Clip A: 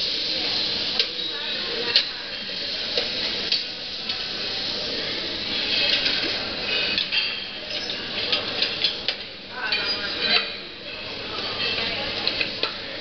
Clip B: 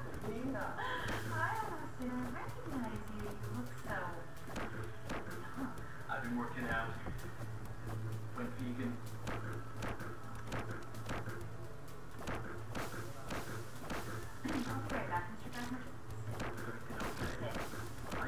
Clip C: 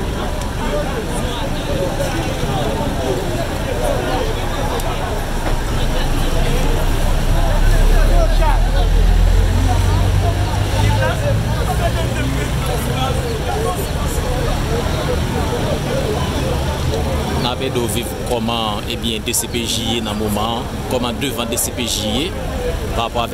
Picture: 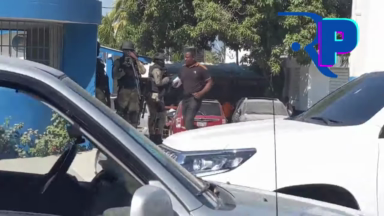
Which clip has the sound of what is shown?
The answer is C